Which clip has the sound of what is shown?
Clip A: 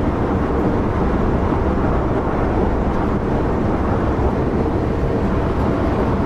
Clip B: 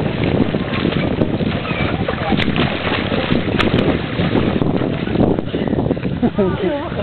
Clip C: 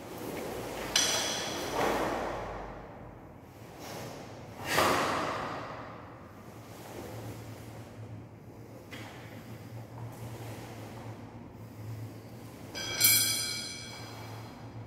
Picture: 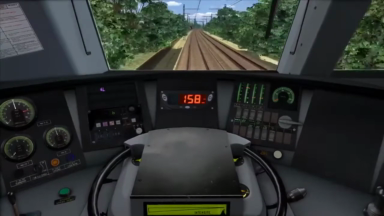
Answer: A